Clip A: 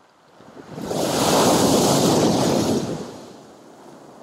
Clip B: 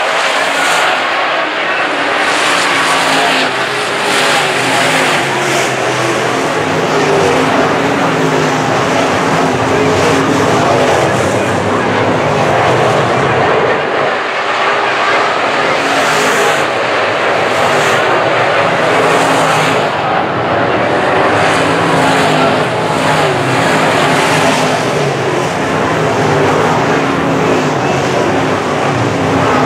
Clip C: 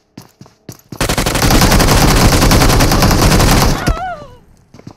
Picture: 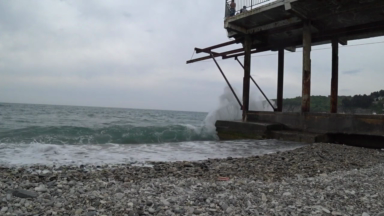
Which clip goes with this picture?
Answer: A